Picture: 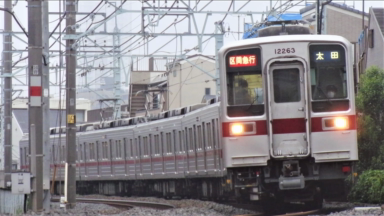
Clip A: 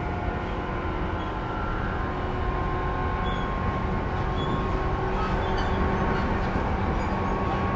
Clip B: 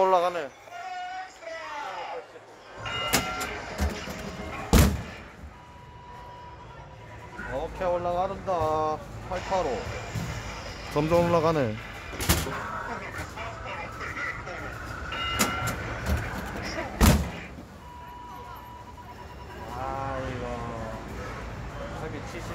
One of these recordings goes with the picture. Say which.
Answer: A